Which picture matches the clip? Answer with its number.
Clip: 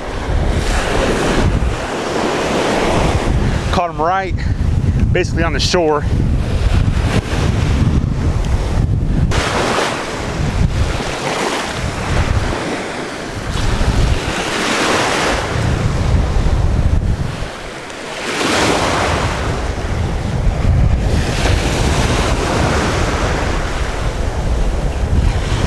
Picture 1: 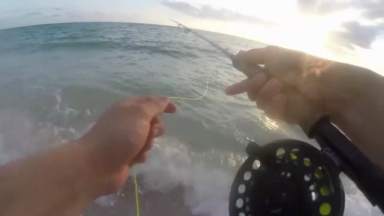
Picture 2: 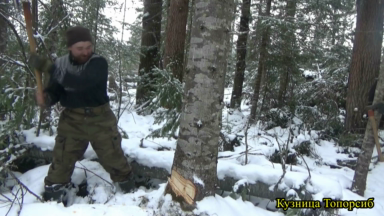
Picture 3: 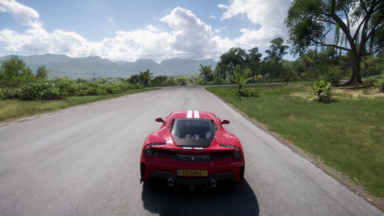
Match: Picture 1